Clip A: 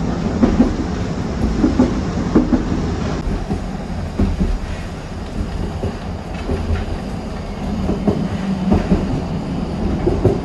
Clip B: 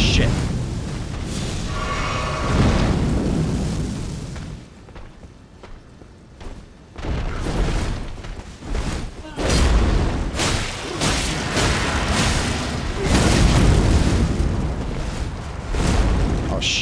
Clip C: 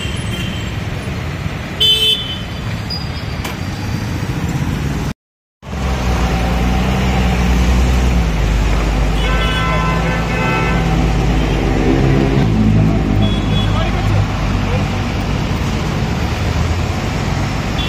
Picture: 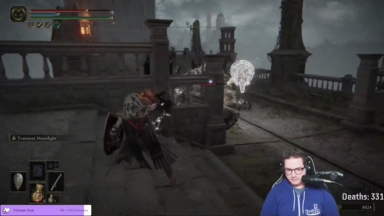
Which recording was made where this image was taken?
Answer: B